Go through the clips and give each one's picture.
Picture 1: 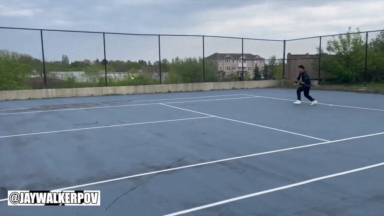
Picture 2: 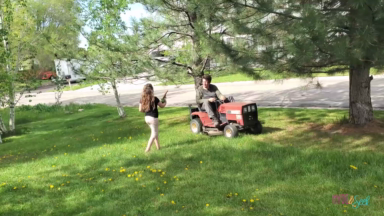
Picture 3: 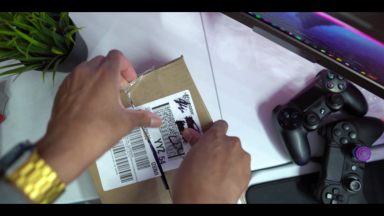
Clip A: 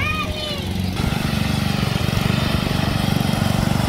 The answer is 2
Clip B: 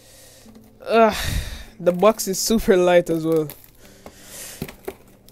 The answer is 3